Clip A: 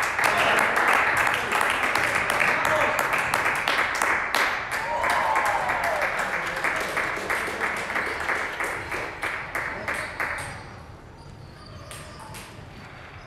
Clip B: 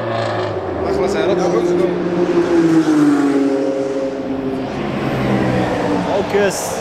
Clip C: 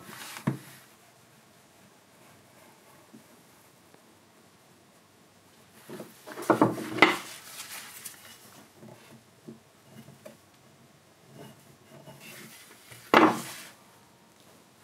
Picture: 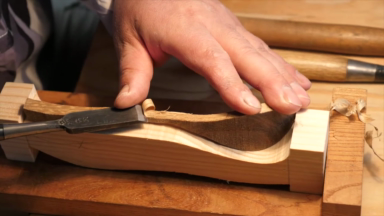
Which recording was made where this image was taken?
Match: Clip C